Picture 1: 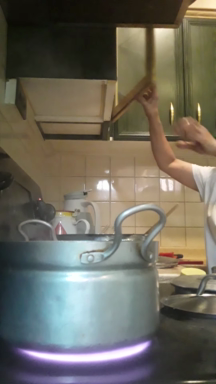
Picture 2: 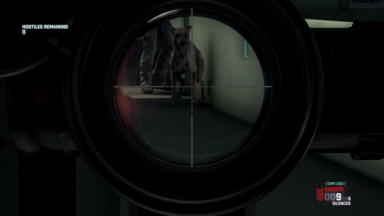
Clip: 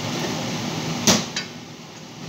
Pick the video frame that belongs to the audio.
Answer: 1